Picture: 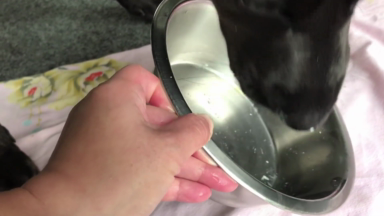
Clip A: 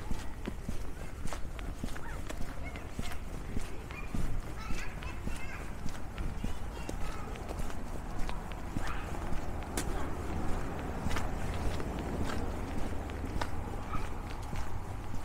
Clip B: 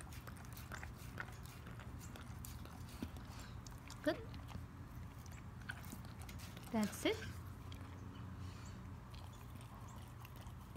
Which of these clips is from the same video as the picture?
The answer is B